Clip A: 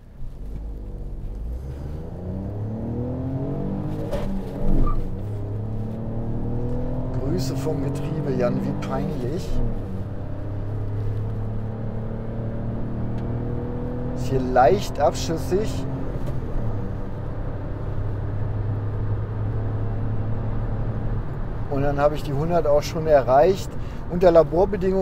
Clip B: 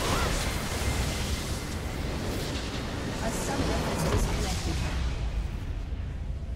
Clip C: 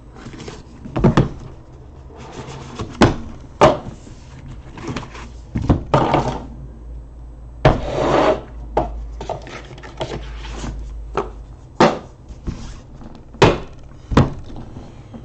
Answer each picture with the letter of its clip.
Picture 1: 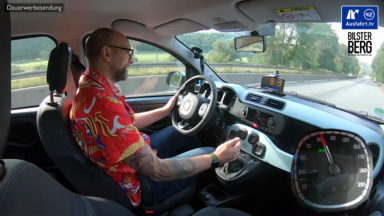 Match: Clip A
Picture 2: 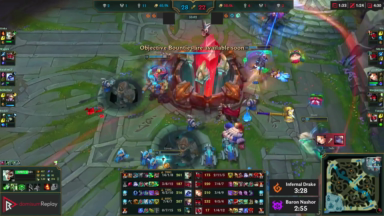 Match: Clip B